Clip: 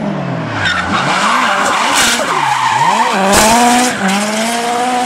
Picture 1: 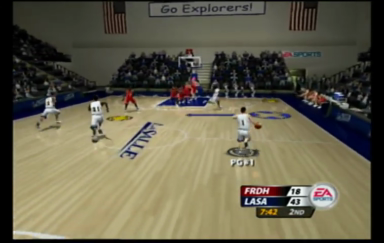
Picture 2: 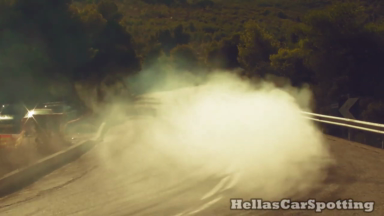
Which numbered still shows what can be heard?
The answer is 2